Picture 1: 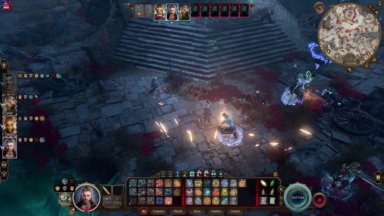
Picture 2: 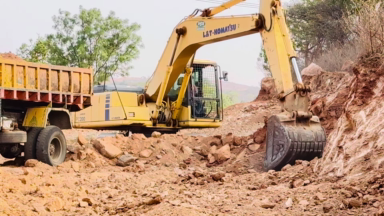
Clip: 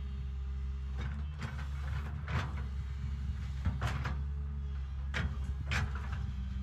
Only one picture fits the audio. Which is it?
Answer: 2